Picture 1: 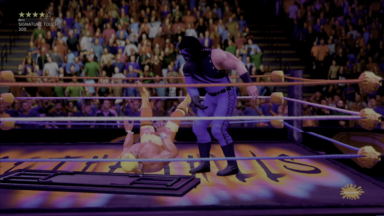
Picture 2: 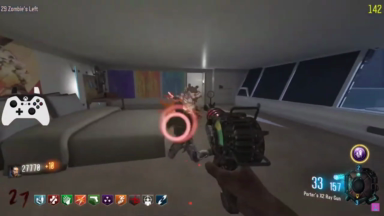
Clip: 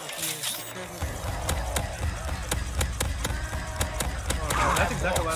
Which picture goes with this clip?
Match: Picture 2